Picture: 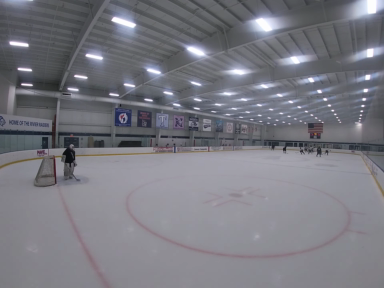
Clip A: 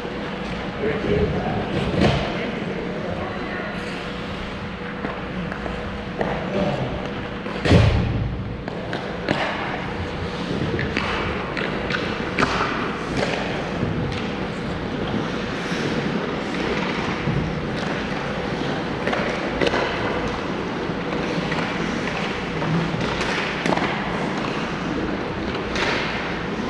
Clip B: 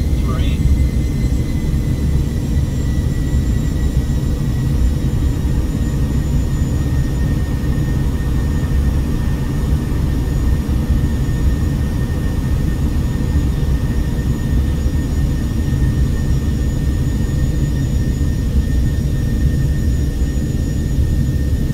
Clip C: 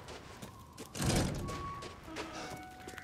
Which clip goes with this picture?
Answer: A